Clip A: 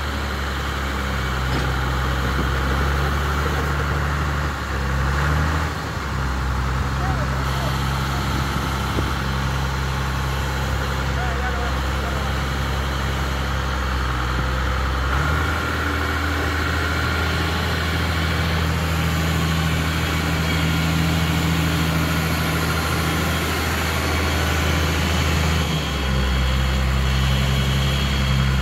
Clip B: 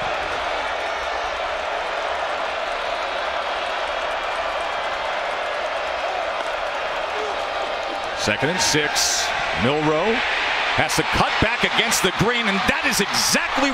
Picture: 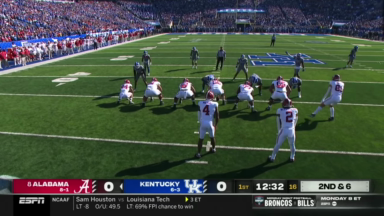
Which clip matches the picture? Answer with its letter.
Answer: B